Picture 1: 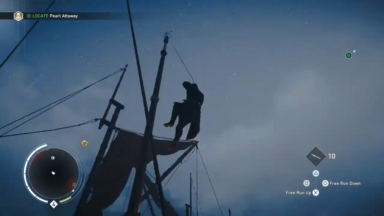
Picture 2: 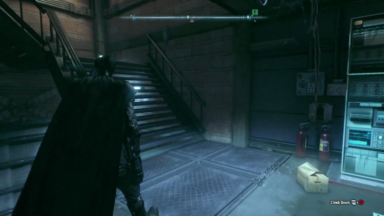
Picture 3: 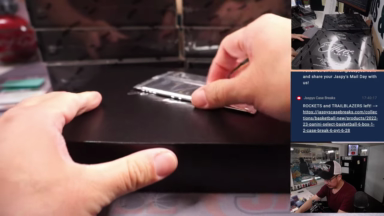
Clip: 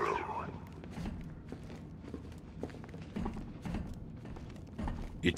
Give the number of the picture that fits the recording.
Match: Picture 2